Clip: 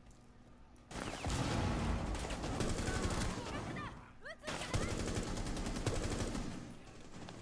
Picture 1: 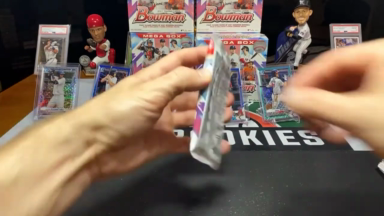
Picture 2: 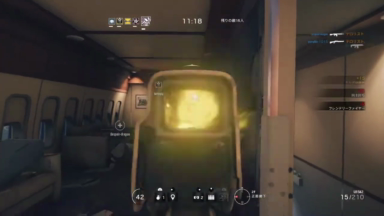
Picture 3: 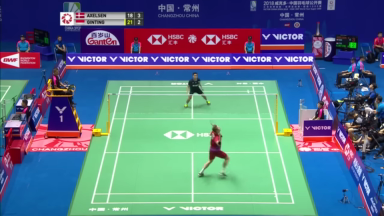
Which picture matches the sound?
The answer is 2